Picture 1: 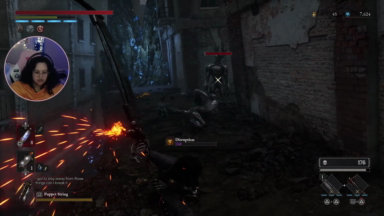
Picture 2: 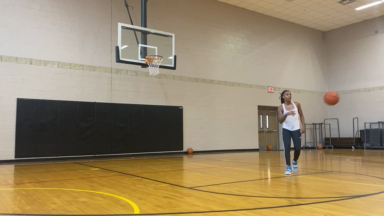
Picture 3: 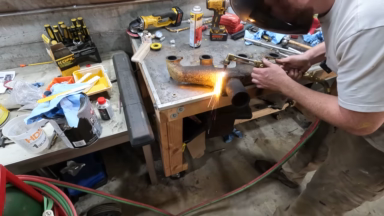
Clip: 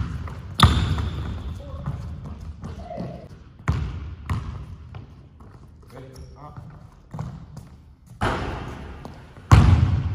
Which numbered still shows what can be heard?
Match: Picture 2